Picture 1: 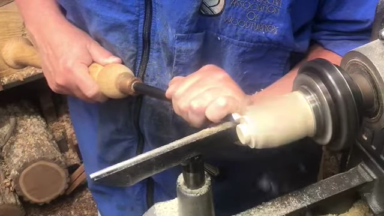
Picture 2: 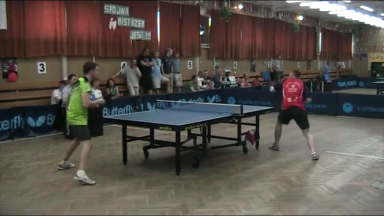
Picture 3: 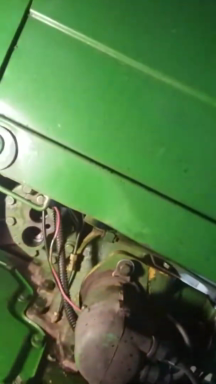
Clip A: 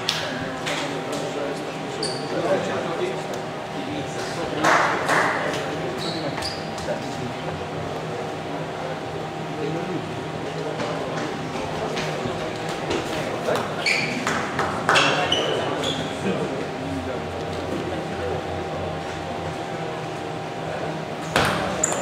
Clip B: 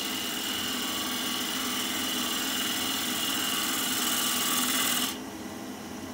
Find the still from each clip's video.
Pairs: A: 2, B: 1